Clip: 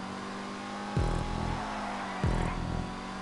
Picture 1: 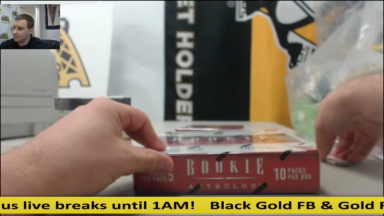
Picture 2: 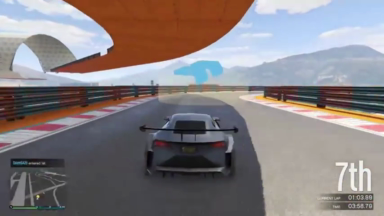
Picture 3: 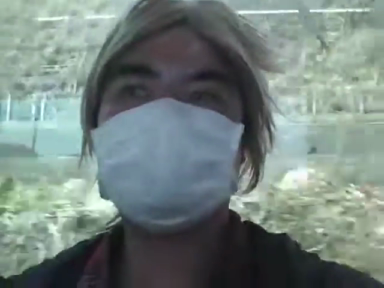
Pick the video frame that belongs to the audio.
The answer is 2